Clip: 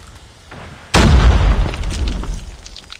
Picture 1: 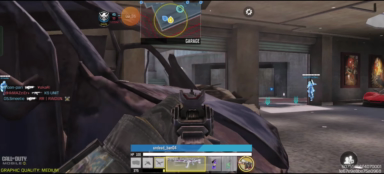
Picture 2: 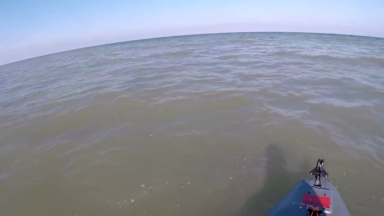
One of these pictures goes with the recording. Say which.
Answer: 1